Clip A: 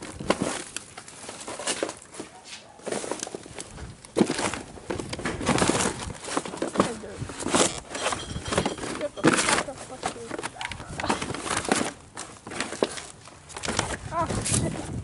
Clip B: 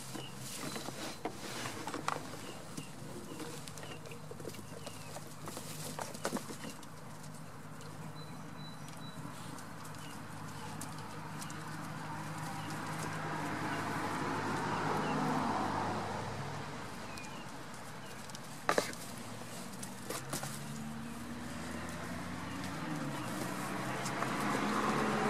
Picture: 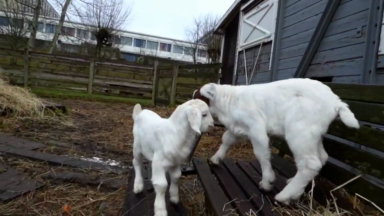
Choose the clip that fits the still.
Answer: B